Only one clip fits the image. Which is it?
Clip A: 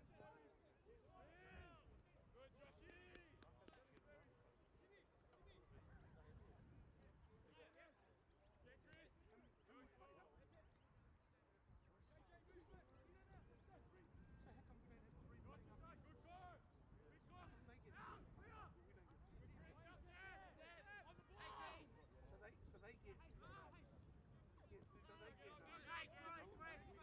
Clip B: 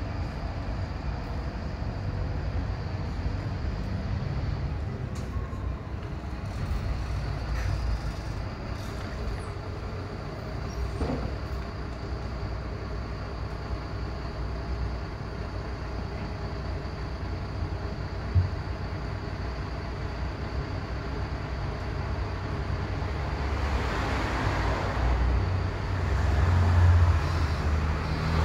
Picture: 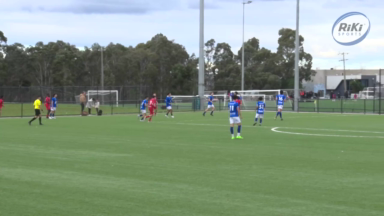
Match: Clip A